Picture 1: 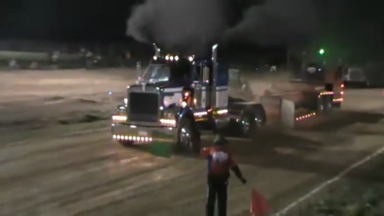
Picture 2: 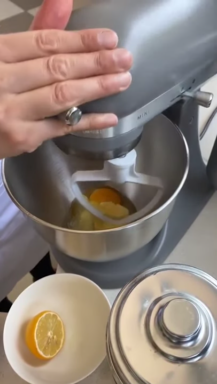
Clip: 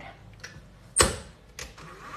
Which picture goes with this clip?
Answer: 2